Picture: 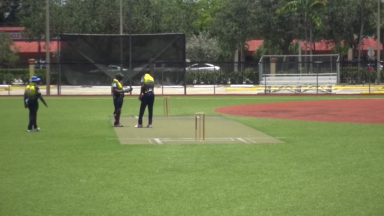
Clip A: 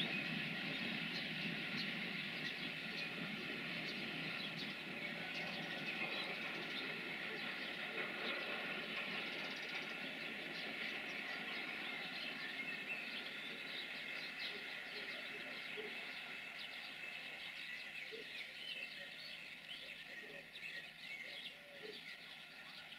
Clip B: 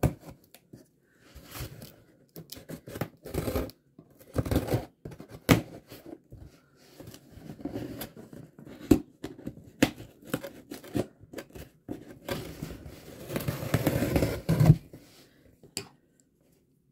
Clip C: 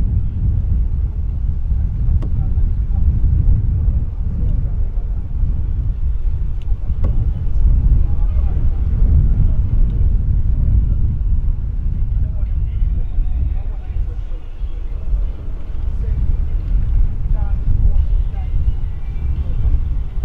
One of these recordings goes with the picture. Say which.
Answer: C